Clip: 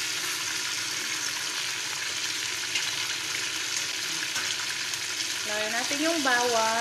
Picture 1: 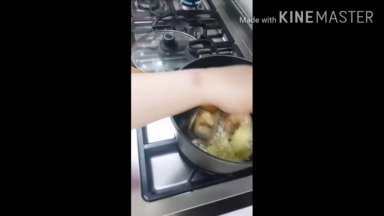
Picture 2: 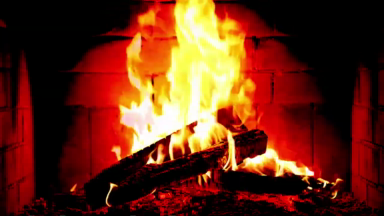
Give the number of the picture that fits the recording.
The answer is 1